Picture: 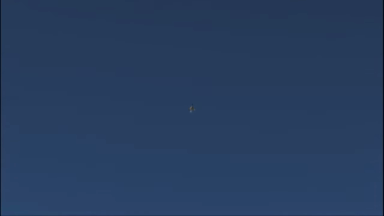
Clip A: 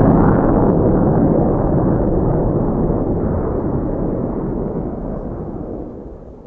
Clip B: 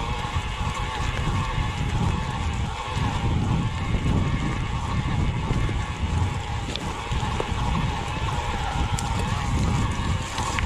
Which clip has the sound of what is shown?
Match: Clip A